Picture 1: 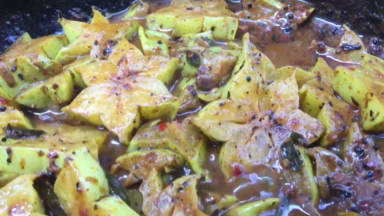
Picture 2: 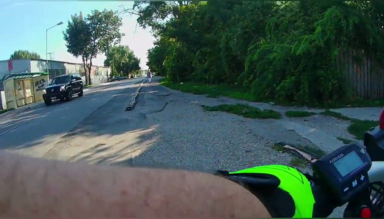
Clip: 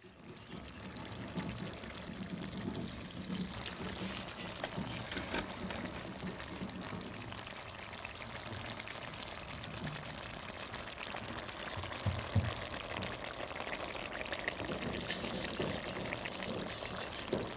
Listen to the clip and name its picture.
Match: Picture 1